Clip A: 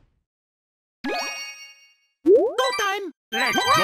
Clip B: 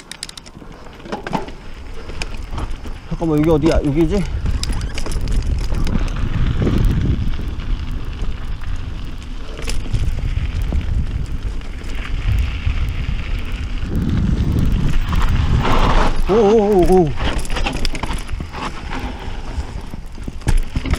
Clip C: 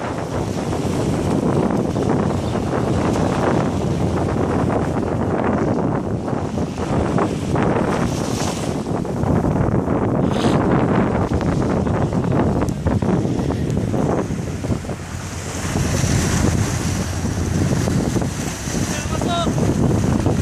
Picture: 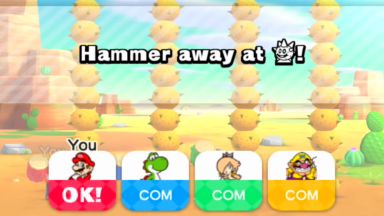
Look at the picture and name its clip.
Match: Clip A